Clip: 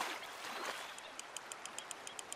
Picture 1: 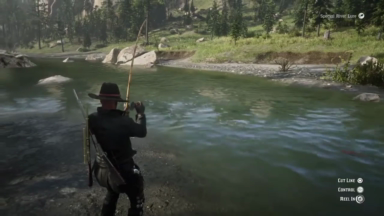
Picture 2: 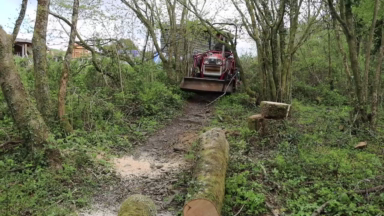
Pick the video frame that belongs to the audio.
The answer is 1